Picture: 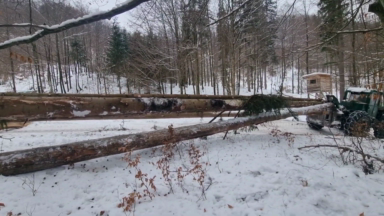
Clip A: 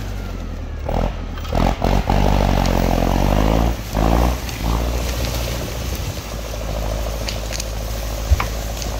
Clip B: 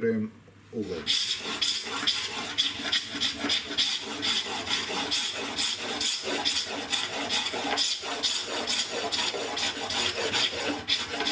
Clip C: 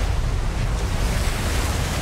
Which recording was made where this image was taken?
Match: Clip A